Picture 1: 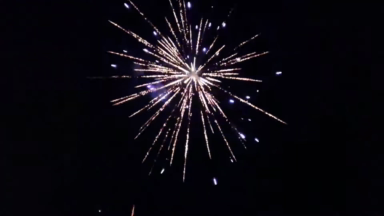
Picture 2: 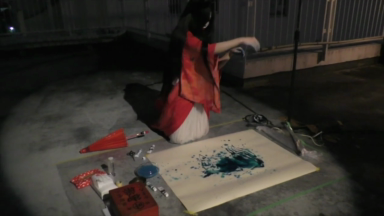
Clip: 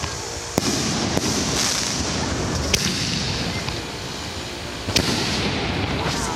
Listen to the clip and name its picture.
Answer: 1